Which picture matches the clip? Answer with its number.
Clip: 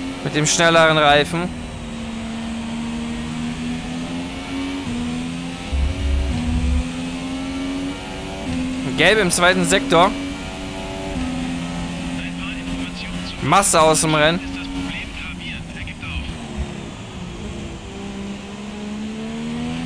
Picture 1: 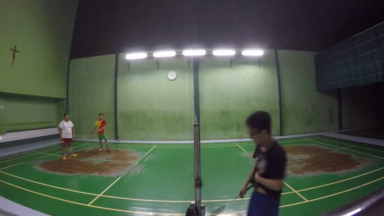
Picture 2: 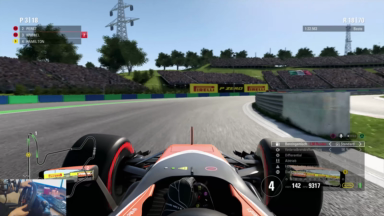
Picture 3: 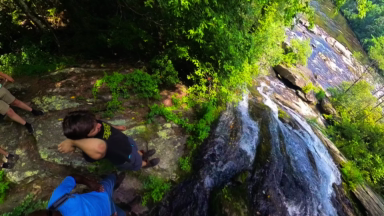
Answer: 2